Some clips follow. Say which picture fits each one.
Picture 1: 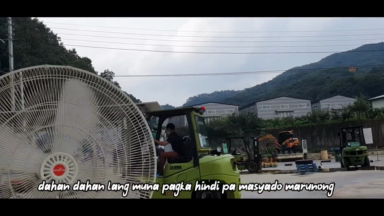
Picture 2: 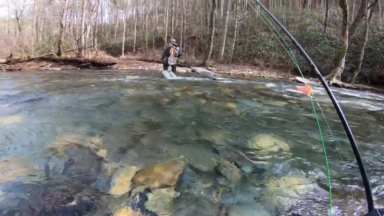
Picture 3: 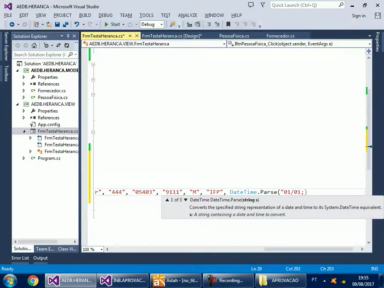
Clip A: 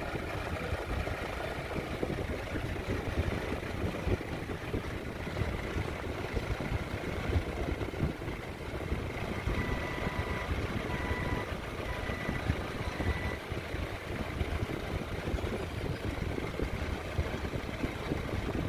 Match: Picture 1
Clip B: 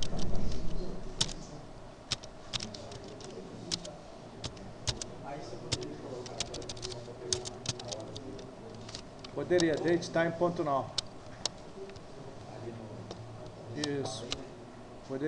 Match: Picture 3